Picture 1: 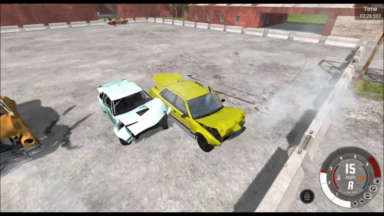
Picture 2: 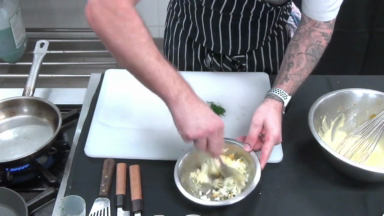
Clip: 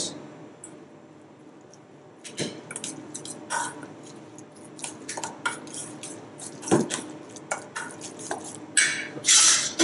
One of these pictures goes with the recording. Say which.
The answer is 2